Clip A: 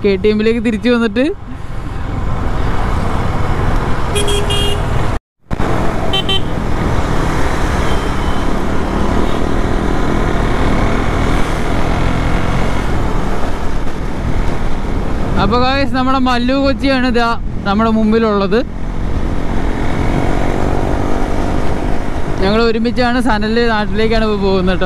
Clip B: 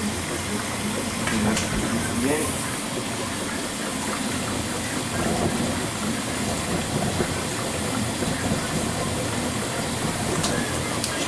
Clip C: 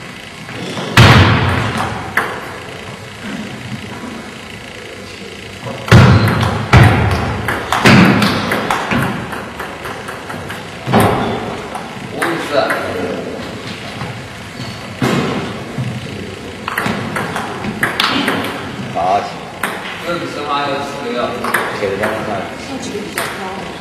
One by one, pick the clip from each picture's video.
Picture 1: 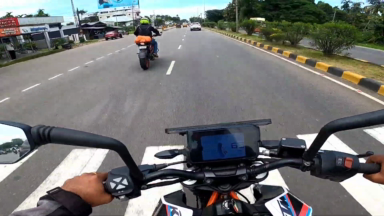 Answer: A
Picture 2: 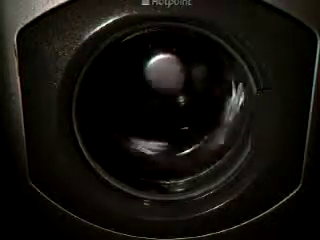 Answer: B